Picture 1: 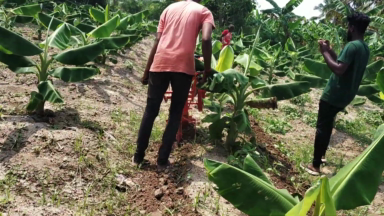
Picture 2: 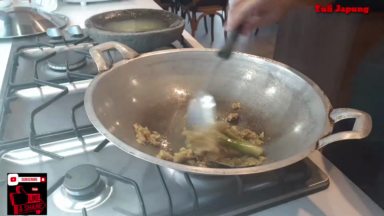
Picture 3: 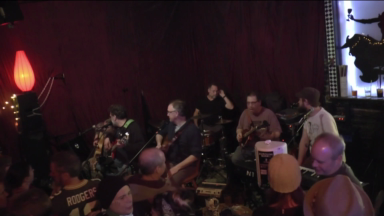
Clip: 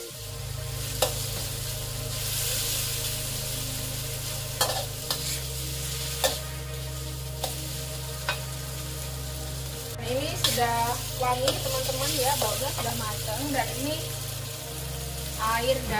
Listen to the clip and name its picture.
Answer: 2